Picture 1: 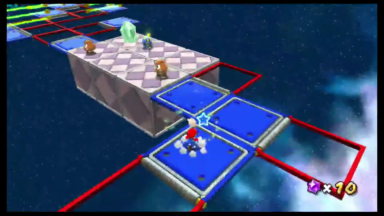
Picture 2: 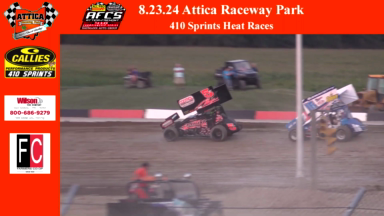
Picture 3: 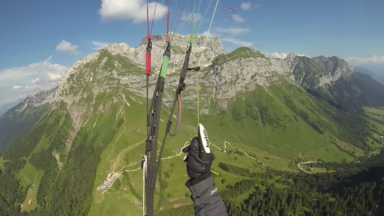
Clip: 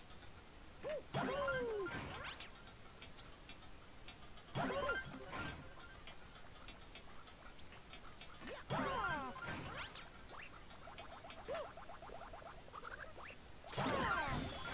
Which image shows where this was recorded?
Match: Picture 1